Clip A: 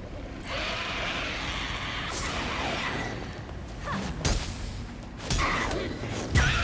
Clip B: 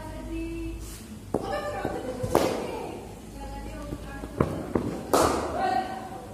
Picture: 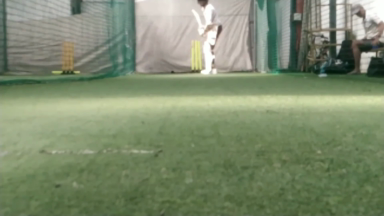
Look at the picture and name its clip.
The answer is B